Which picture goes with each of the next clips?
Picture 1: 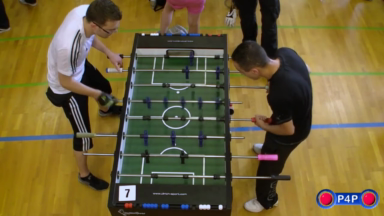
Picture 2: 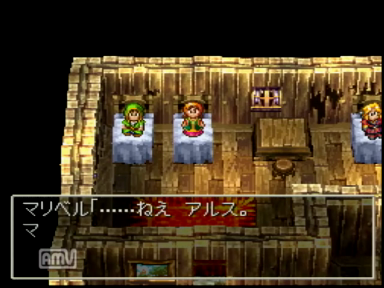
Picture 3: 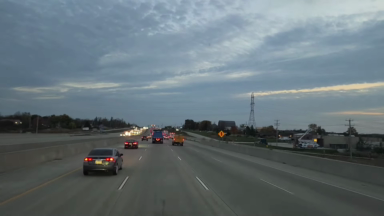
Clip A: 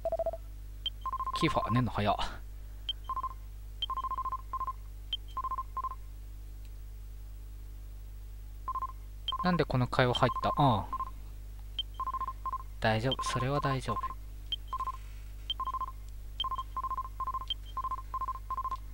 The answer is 2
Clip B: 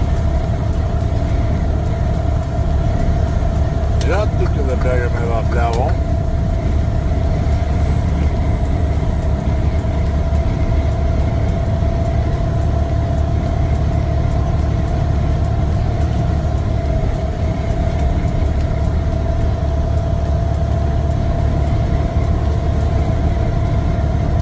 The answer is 3